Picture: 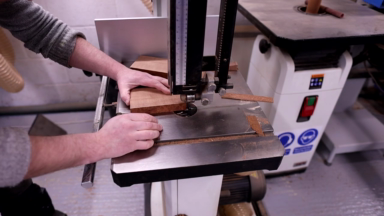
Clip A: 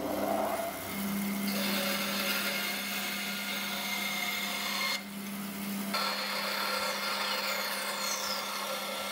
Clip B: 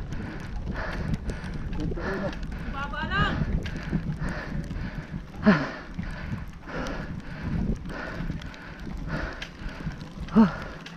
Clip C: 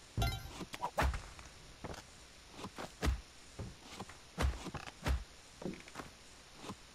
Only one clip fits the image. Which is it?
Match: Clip A